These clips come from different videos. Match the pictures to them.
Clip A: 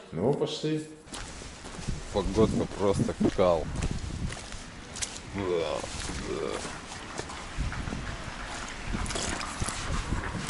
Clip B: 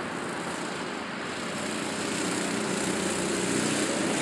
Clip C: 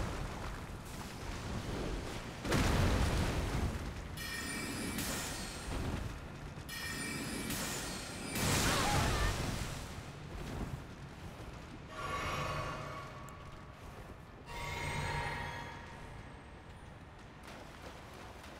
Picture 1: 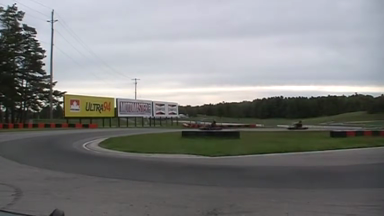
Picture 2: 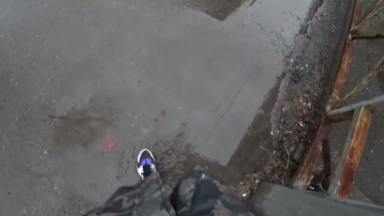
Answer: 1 B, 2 A